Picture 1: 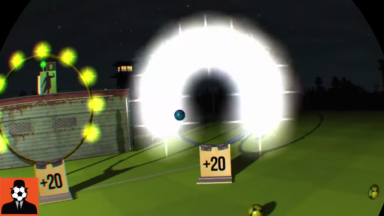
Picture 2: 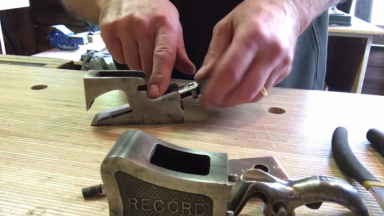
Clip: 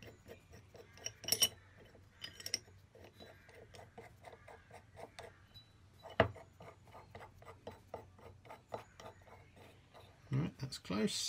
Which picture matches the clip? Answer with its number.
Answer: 2